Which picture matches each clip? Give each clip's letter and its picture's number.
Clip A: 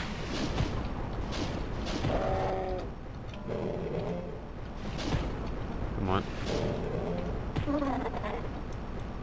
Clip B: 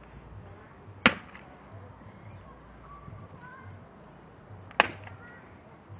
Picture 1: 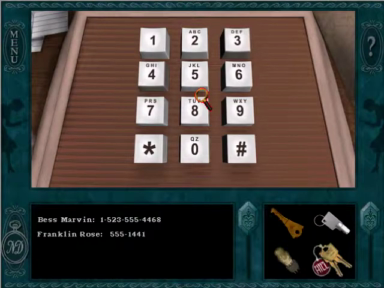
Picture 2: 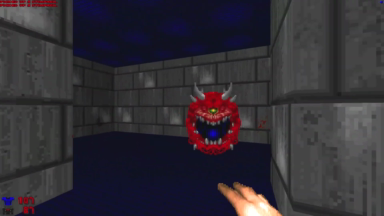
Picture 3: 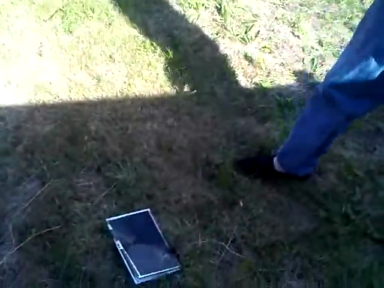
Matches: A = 2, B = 3